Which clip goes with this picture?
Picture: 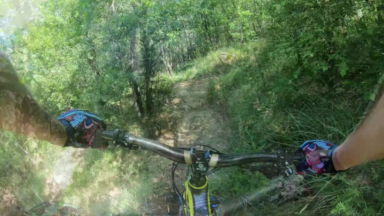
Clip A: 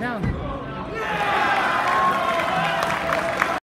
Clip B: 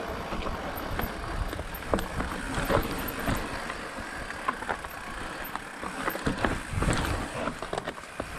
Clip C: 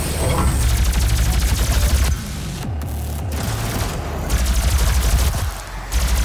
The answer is B